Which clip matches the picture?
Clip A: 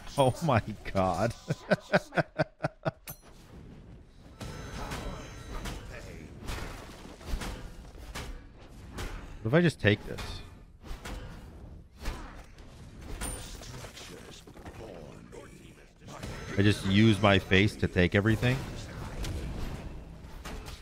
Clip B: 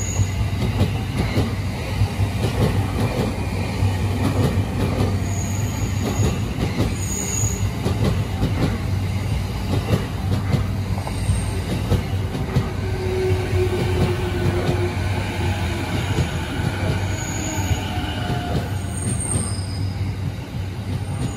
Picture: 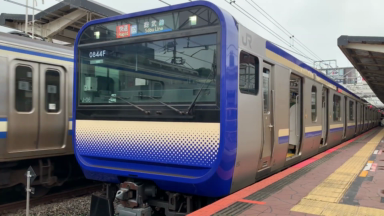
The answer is B